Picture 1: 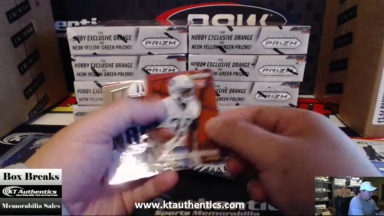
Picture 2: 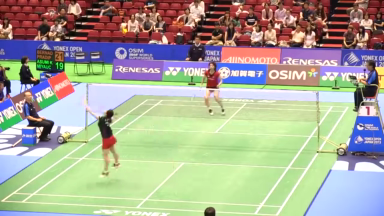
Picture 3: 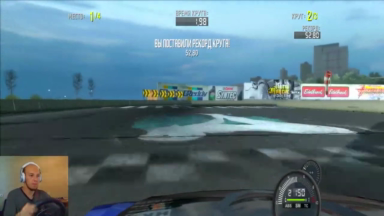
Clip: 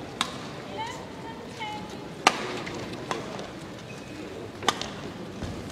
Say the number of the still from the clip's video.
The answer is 2